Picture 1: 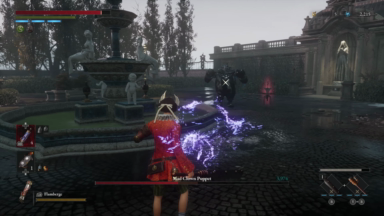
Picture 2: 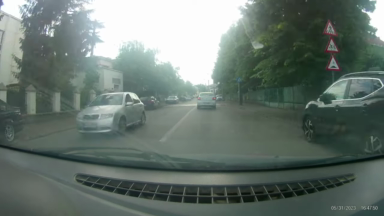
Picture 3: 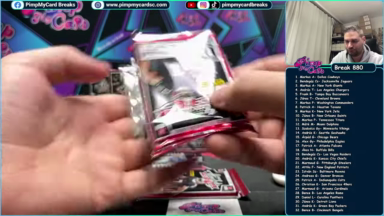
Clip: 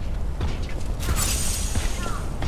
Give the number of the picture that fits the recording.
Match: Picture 1